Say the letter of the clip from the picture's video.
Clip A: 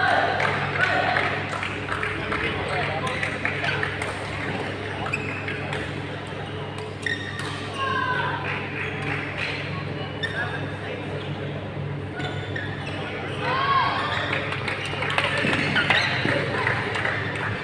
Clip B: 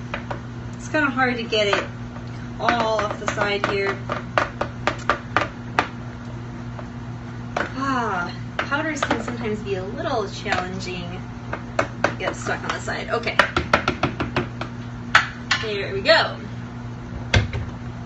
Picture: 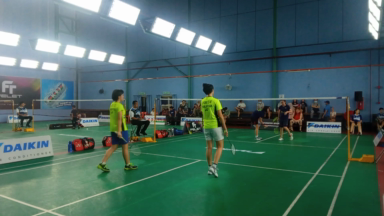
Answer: A